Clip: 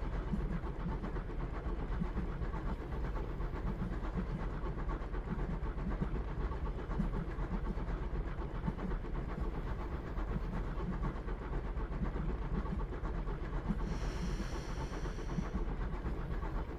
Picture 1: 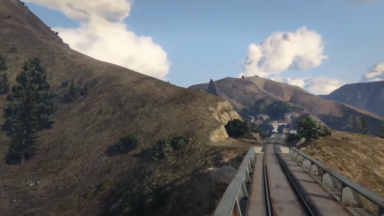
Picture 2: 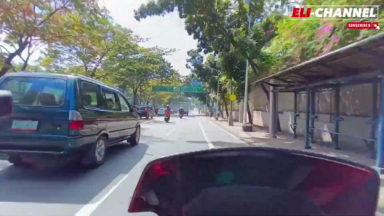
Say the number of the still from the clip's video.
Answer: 1